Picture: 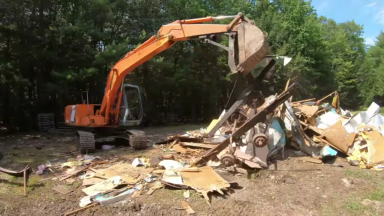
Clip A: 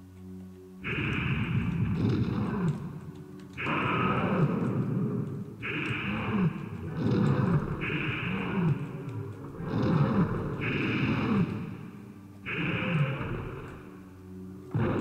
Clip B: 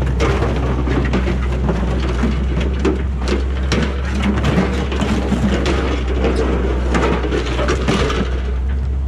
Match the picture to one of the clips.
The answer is B